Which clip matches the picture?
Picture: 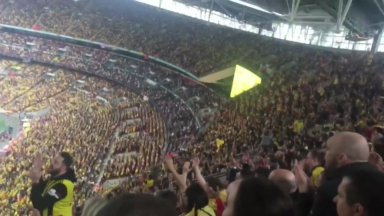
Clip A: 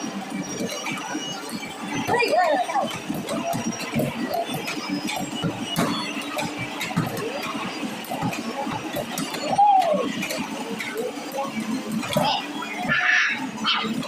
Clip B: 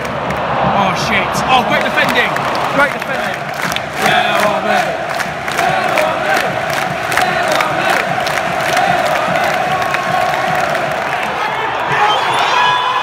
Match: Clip B